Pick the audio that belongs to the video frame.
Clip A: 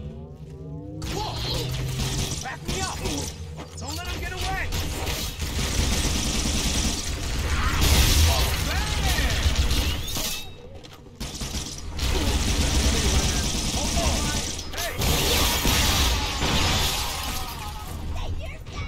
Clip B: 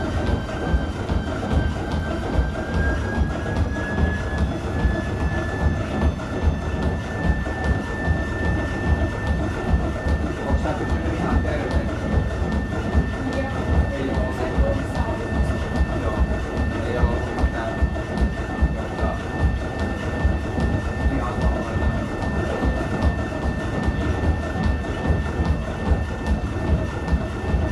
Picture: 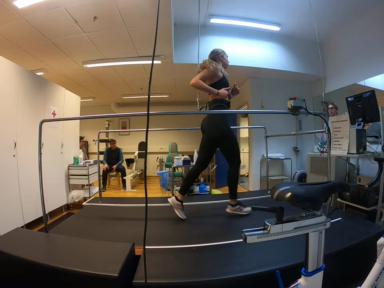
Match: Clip B